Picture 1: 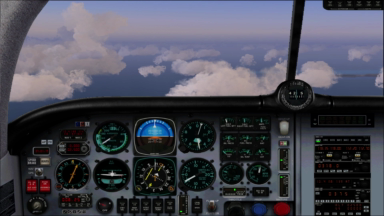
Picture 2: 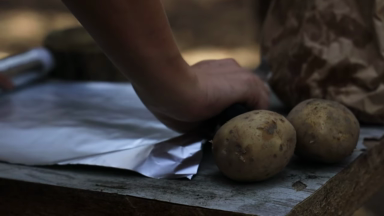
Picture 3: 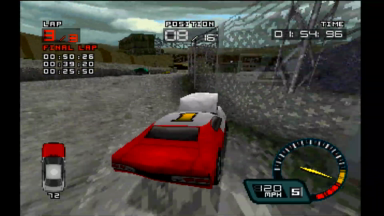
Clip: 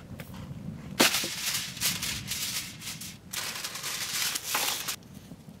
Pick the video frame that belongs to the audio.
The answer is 2